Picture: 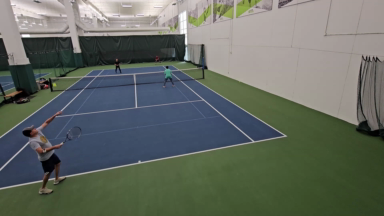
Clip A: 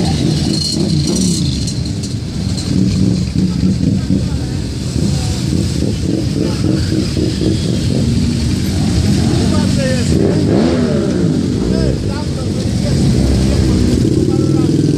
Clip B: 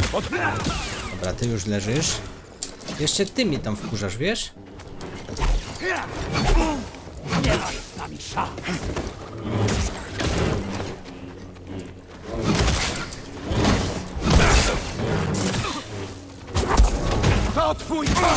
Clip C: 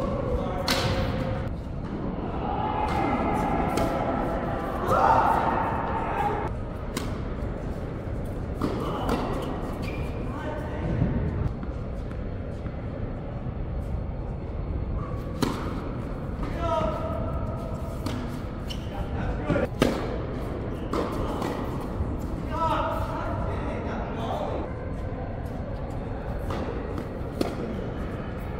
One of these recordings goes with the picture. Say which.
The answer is C